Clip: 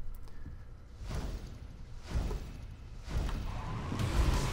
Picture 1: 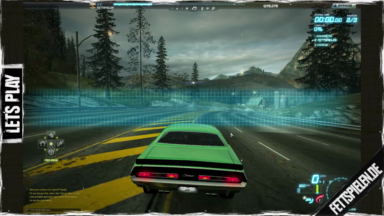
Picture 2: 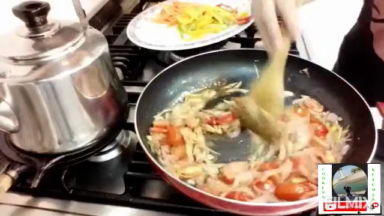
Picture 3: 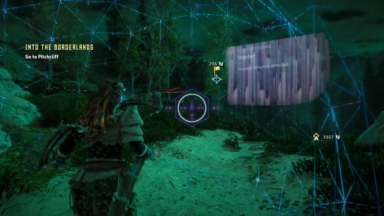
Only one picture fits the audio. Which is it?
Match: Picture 1